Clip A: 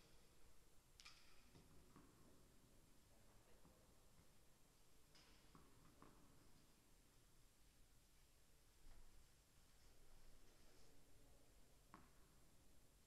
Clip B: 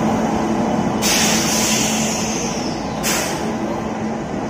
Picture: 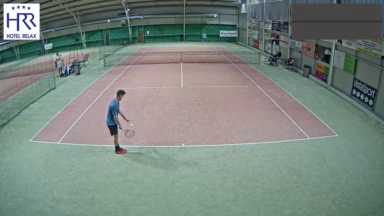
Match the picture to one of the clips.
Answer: A